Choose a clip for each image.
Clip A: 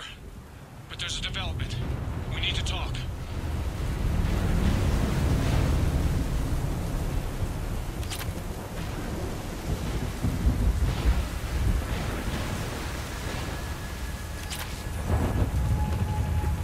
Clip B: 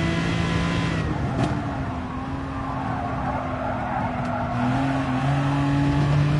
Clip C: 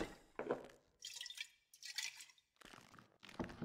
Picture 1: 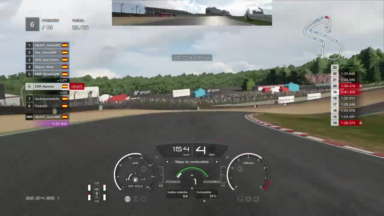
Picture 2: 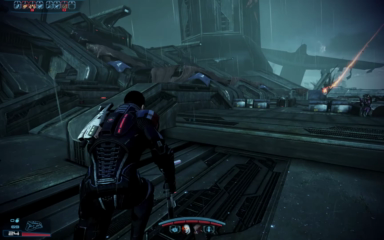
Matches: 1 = B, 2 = A